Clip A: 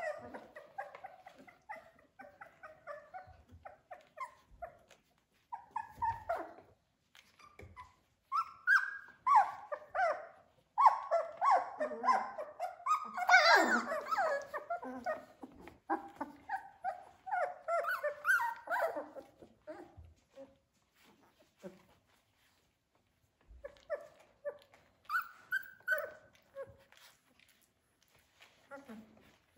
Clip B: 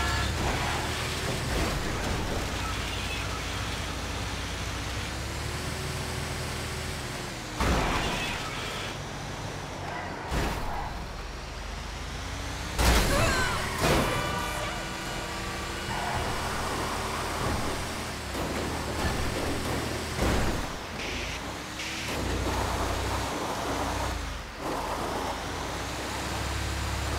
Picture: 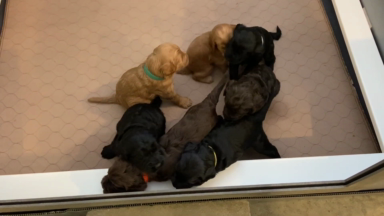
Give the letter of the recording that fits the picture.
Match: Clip A